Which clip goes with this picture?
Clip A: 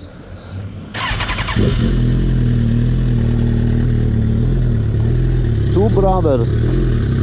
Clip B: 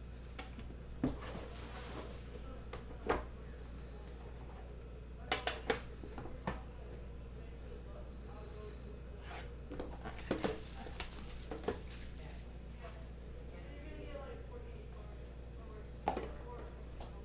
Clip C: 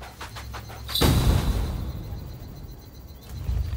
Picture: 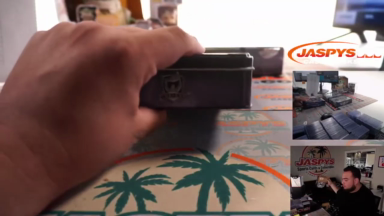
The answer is B